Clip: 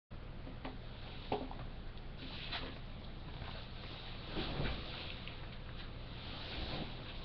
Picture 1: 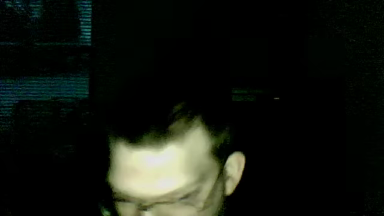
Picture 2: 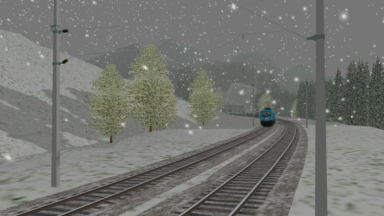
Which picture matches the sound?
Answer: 1